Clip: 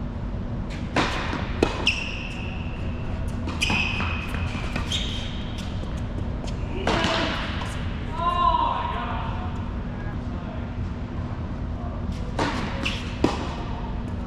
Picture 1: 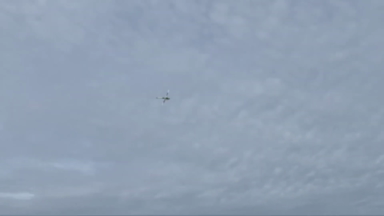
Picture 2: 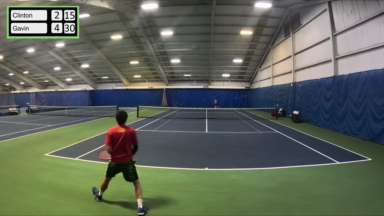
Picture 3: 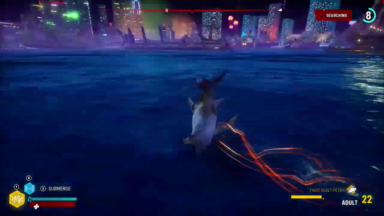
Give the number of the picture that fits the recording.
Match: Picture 2